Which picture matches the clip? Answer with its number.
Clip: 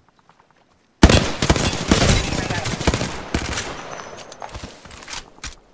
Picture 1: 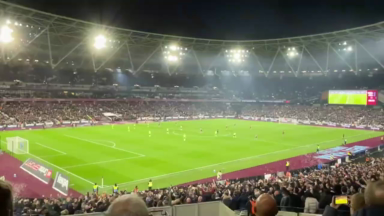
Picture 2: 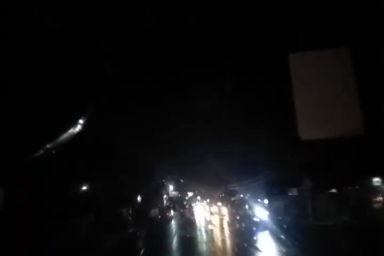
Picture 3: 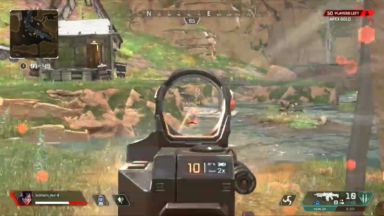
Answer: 3